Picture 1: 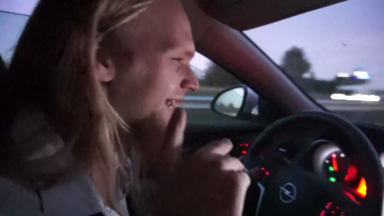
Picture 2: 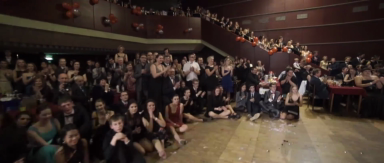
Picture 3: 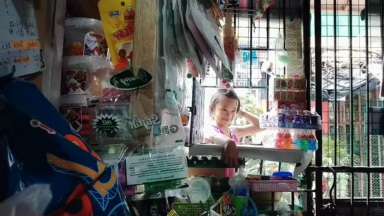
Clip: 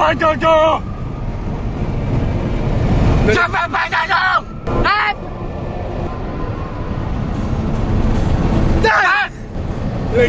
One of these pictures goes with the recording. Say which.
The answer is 1